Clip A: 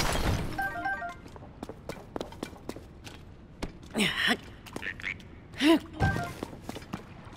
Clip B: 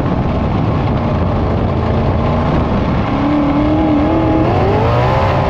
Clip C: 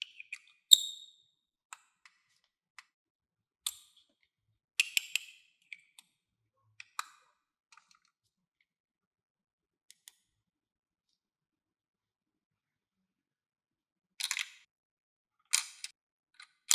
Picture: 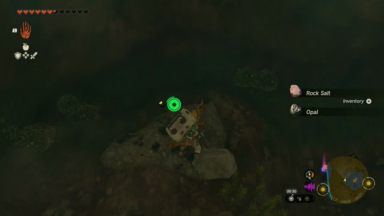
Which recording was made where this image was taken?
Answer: A